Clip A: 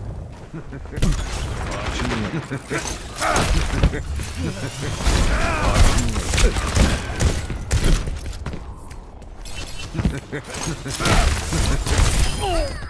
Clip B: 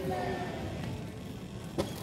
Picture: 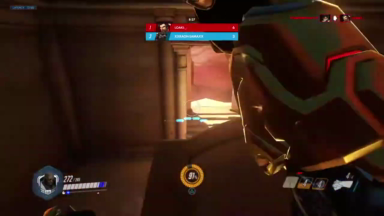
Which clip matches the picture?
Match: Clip A